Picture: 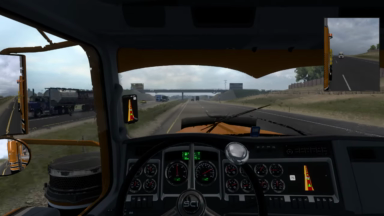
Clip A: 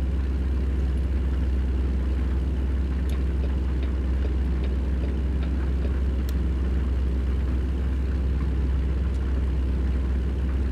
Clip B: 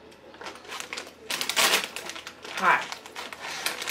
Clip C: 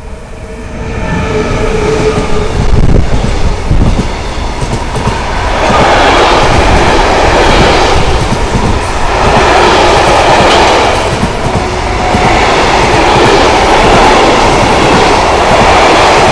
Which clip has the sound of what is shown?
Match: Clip A